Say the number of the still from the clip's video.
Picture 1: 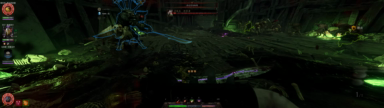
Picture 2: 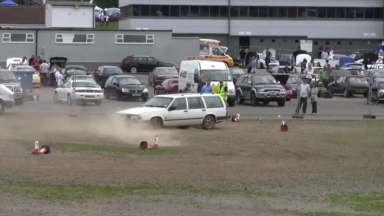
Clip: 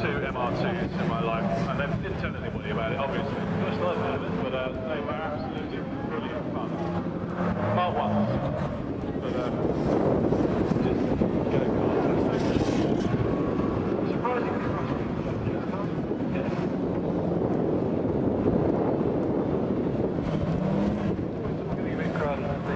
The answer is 2